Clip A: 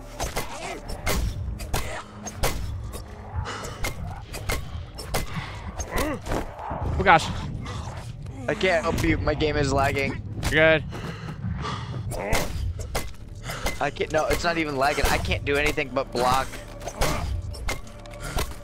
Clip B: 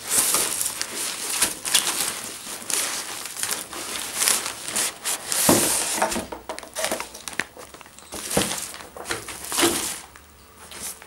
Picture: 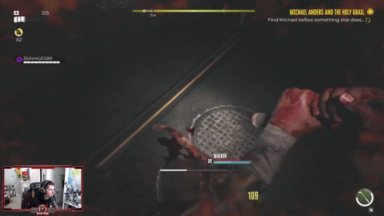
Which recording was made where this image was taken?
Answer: A